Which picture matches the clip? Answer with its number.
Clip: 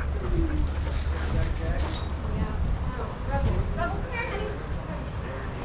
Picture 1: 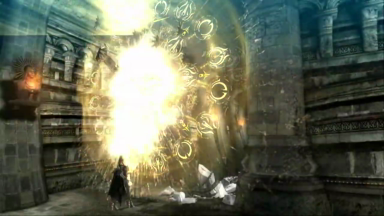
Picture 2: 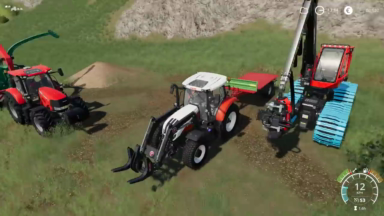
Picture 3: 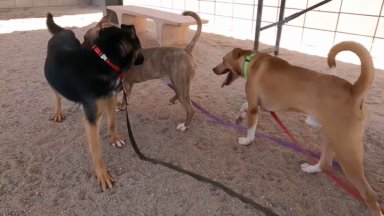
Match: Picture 3